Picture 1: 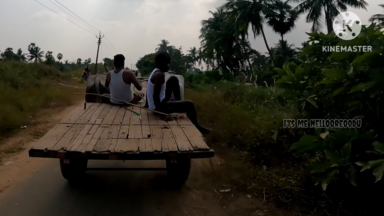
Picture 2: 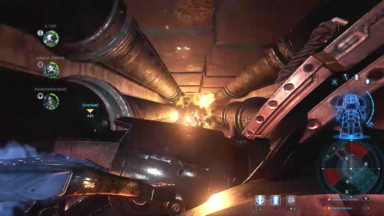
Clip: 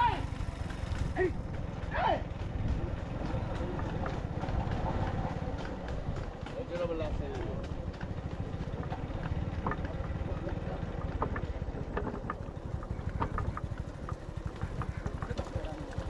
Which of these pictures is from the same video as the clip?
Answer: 1